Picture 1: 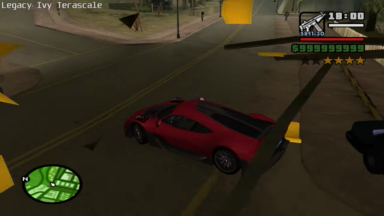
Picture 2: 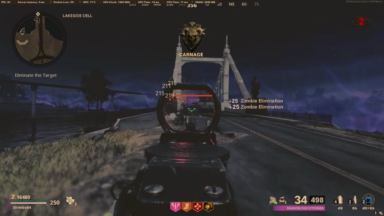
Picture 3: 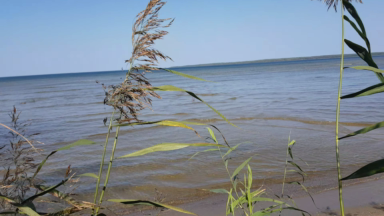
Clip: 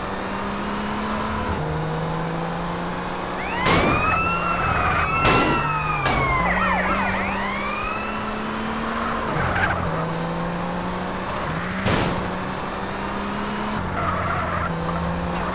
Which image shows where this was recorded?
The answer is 1